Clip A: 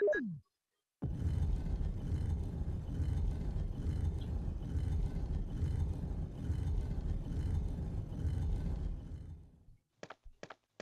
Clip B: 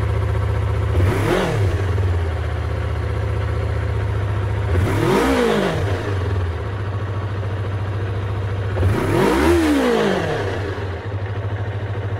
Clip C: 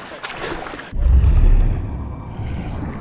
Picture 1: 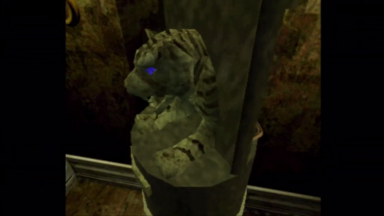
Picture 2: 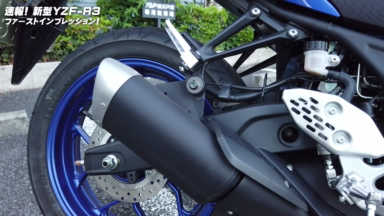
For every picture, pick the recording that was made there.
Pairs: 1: A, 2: B